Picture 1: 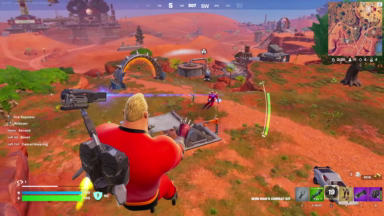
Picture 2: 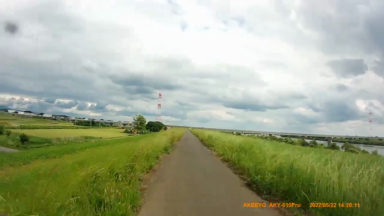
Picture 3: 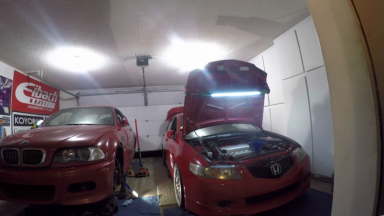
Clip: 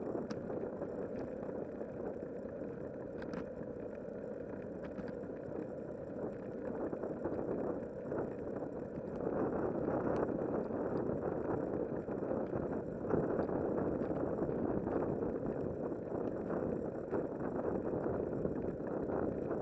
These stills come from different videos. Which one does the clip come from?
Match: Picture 2